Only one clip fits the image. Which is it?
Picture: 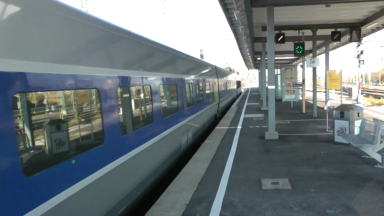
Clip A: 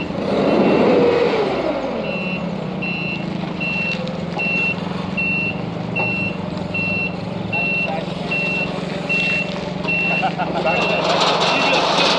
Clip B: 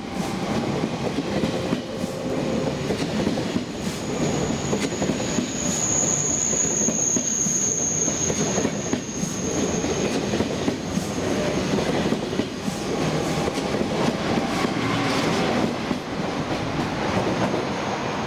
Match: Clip B